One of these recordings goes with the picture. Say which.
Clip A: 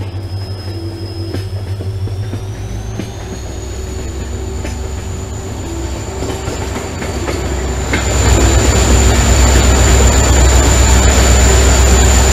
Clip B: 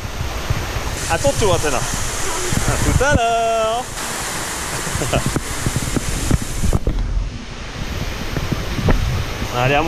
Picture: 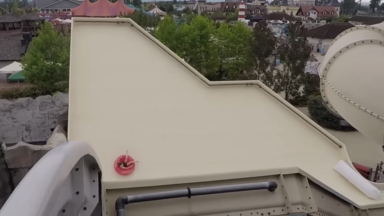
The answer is B